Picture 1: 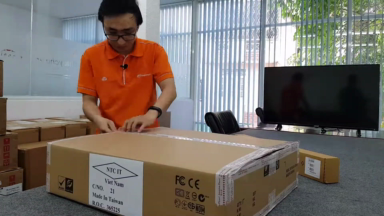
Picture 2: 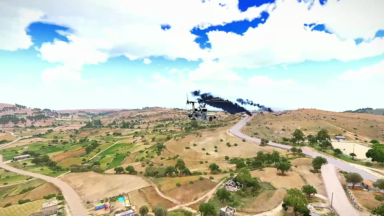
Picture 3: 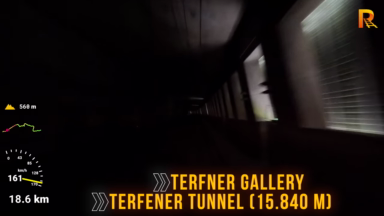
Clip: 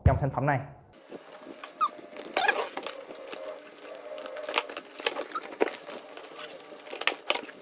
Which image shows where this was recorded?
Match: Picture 1